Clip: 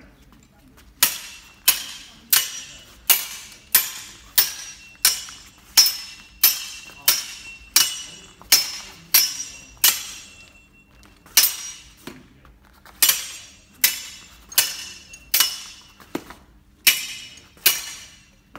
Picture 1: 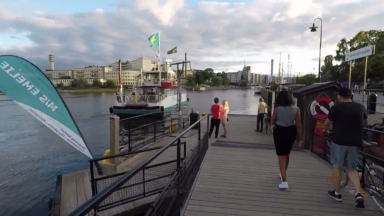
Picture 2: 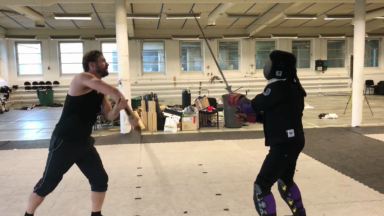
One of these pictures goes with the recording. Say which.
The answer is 2